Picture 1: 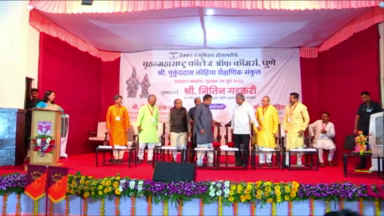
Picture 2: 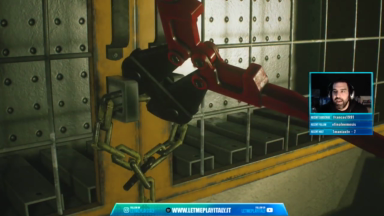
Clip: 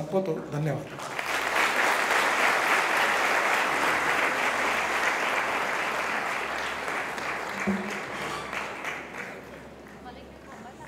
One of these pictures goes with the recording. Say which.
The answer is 1